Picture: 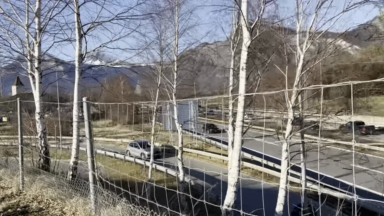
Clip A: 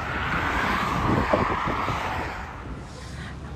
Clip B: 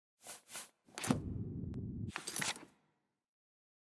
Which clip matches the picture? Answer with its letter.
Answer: A